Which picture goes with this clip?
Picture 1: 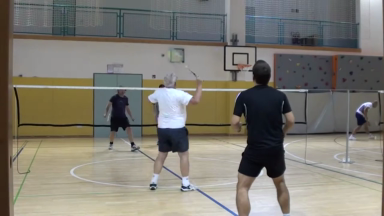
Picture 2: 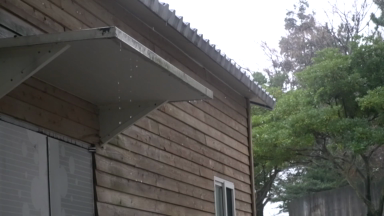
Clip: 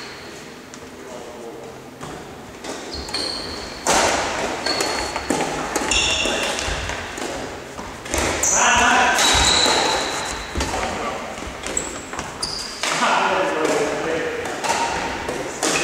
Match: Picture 1